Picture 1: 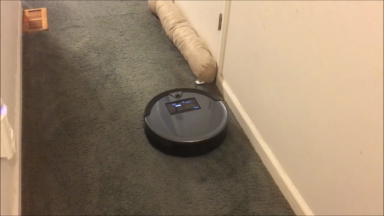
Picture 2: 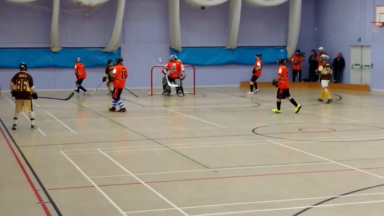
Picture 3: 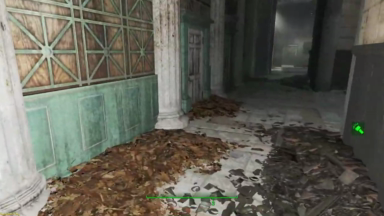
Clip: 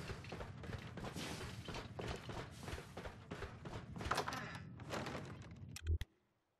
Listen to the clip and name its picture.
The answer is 3